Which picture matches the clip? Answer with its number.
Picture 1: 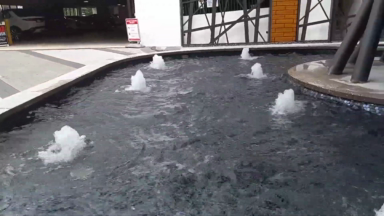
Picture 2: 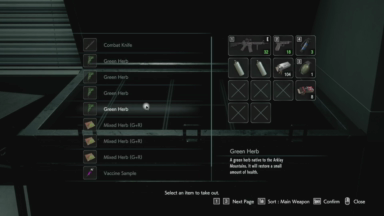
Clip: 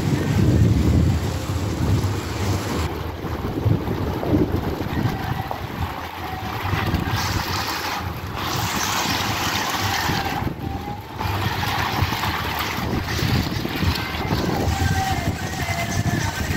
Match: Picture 1